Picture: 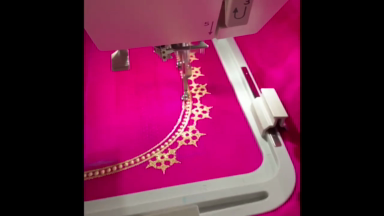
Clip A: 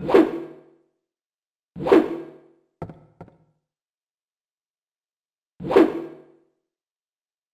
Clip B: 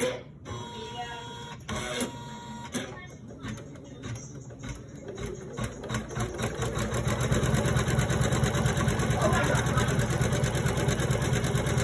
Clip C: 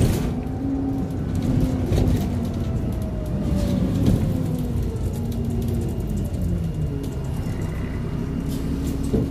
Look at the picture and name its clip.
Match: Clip B